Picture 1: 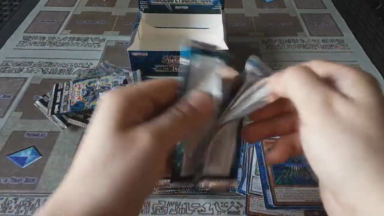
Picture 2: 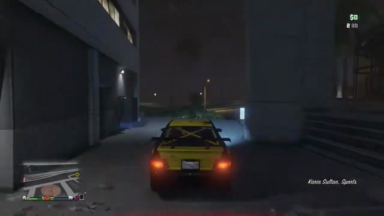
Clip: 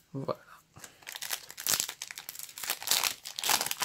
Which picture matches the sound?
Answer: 1